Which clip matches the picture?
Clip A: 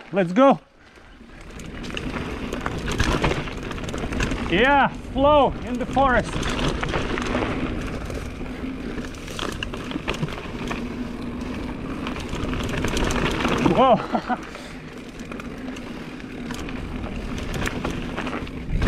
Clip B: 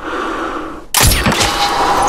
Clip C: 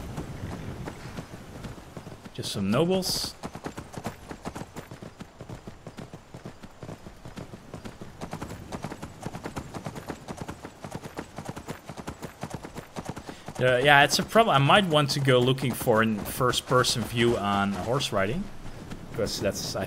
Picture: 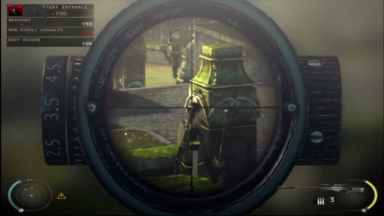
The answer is B